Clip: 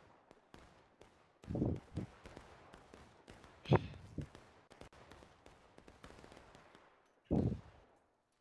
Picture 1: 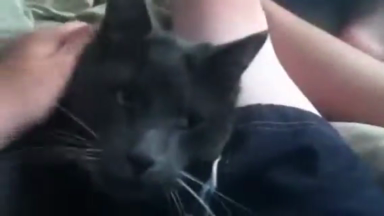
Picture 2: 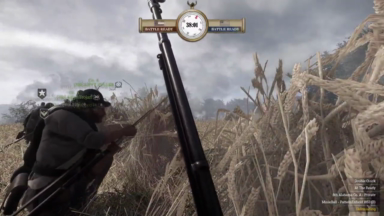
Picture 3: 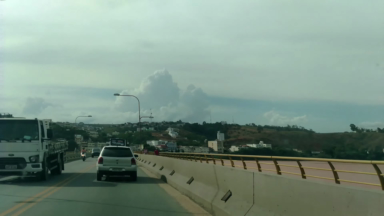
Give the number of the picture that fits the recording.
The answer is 2